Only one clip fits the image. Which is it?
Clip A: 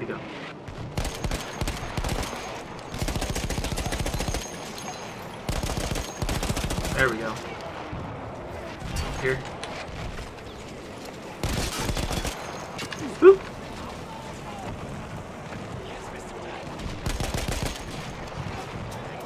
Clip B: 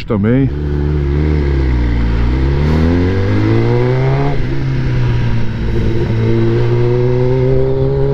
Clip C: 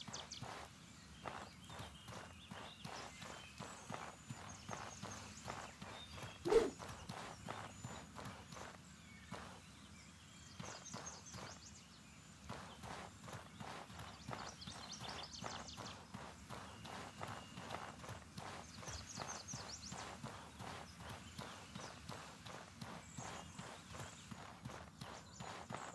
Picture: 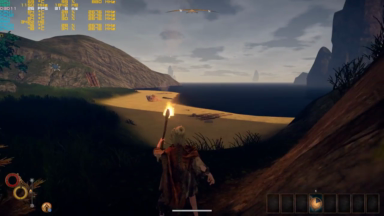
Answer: C